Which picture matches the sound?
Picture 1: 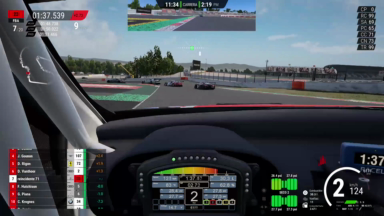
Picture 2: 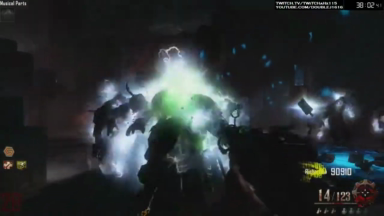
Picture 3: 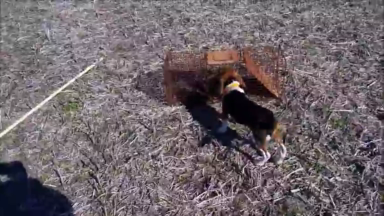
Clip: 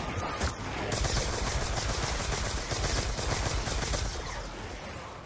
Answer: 2